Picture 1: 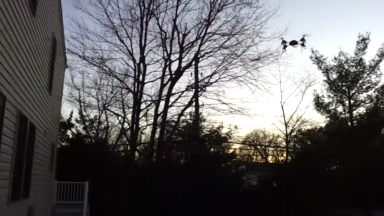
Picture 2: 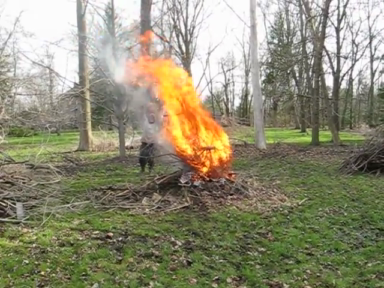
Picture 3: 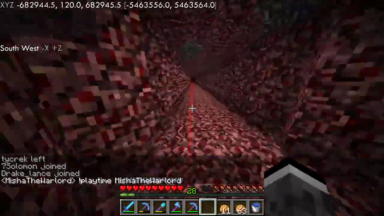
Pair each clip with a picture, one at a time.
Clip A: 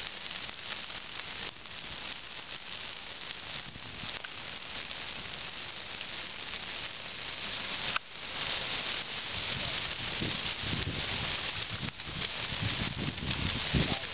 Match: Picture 2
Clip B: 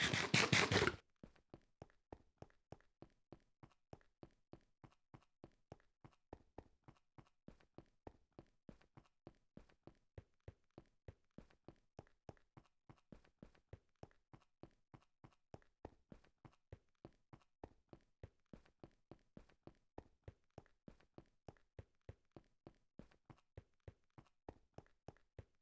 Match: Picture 3